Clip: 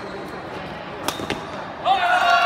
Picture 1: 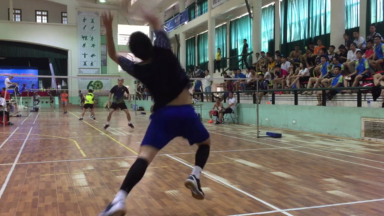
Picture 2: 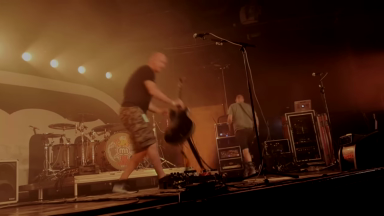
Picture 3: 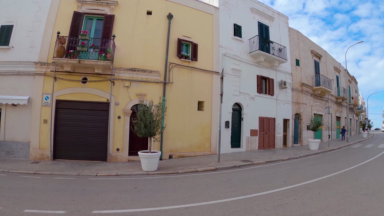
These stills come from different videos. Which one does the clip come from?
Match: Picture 1